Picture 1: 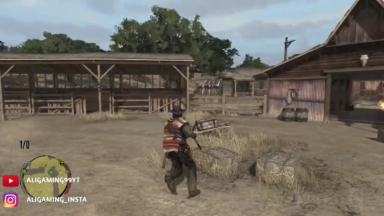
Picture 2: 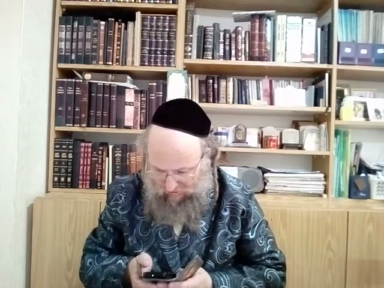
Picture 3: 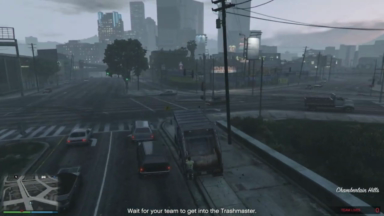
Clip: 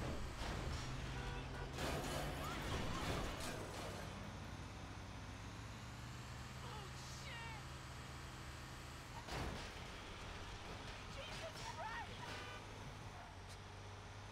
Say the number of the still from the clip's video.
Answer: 3